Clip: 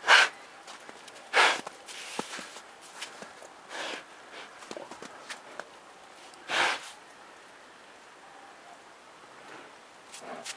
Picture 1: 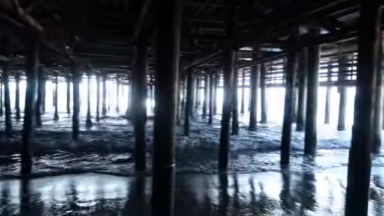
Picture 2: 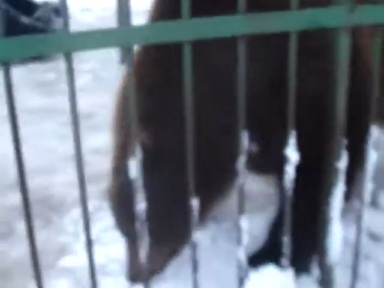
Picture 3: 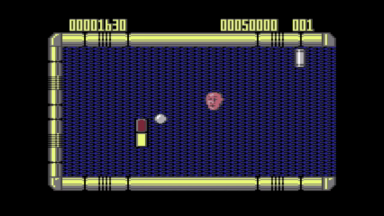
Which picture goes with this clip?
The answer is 2